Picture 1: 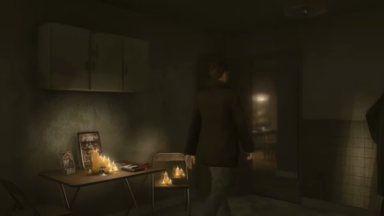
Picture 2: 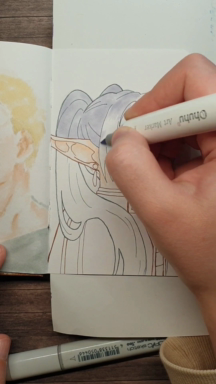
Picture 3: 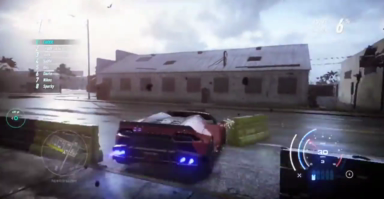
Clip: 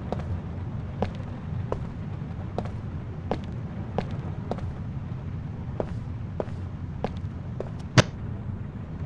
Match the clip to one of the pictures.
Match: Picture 1